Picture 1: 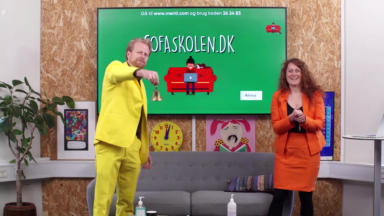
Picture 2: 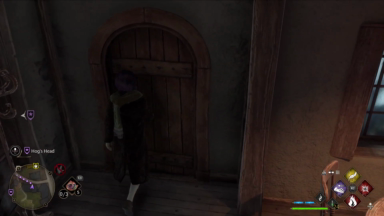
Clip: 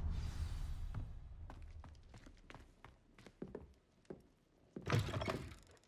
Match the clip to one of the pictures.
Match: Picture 2